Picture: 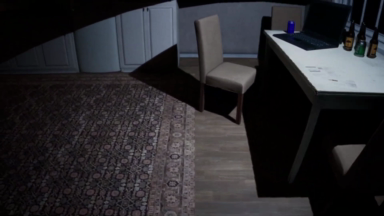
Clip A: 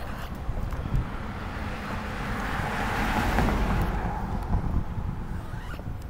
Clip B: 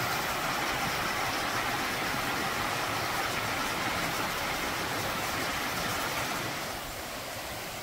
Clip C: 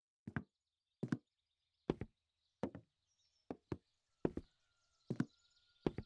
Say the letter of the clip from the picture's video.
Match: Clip C